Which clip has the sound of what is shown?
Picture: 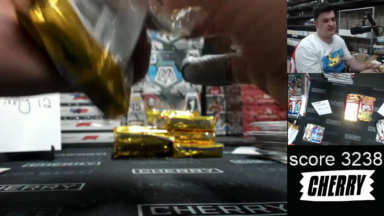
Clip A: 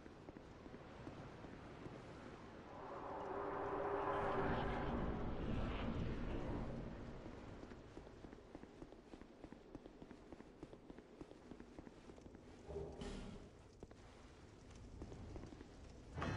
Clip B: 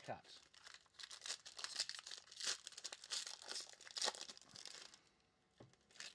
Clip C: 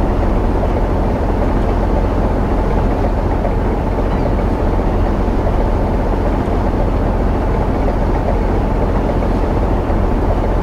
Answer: B